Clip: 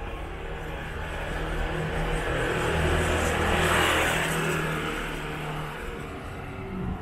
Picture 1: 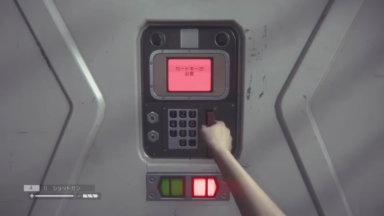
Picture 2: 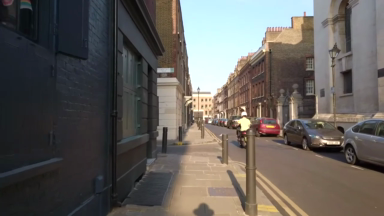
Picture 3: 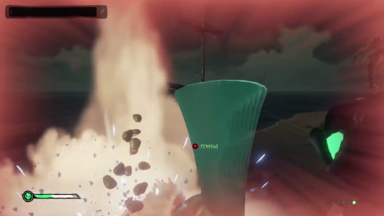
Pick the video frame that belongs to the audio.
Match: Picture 2